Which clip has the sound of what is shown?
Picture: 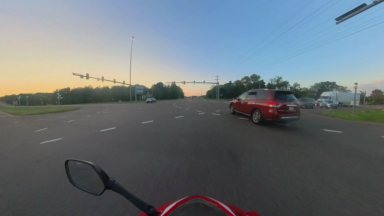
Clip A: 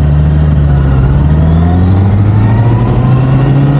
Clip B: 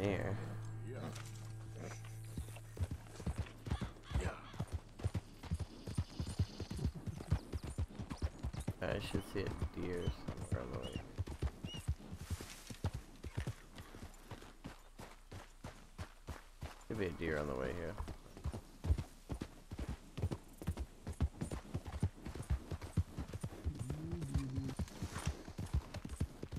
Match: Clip A